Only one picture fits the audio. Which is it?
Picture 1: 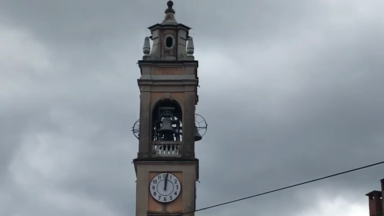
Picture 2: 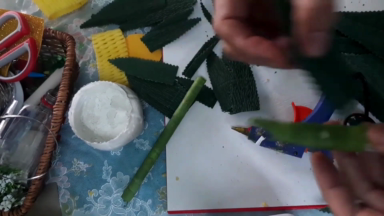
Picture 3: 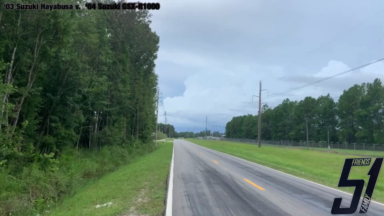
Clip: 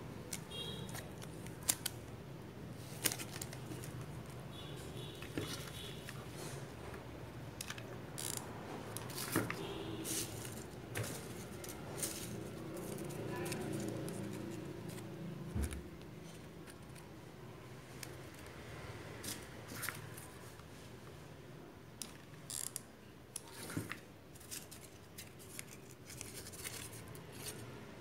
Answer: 2